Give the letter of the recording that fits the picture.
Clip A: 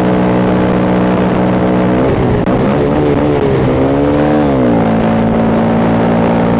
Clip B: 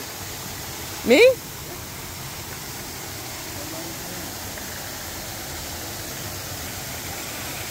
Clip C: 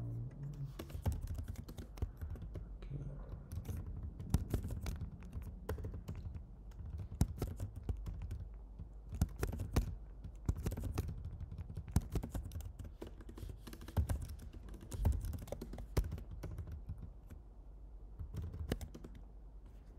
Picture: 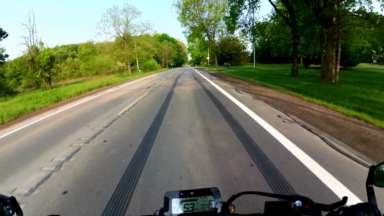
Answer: A